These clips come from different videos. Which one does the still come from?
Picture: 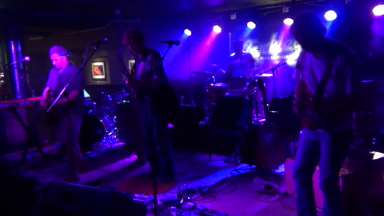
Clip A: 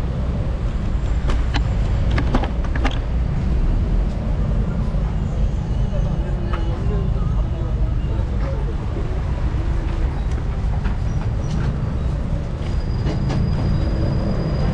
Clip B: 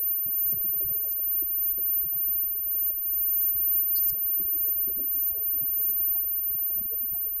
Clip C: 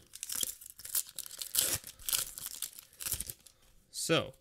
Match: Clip B